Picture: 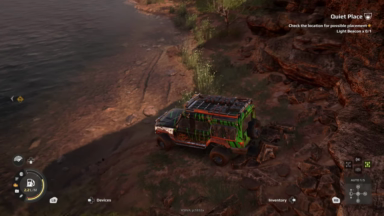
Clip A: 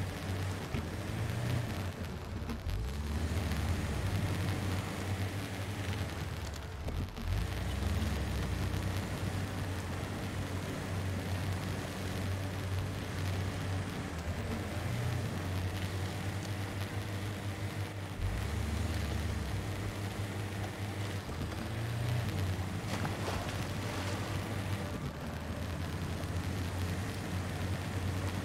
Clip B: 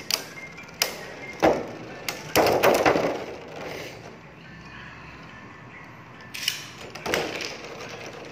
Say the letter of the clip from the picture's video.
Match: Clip A